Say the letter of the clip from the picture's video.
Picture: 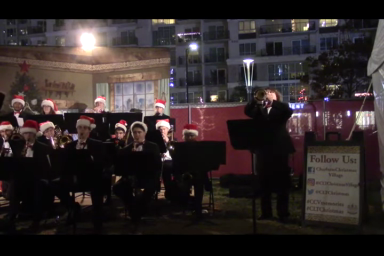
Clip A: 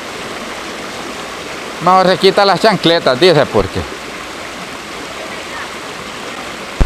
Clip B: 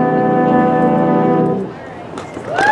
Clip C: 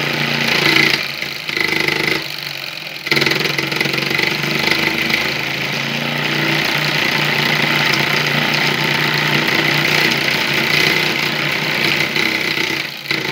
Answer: B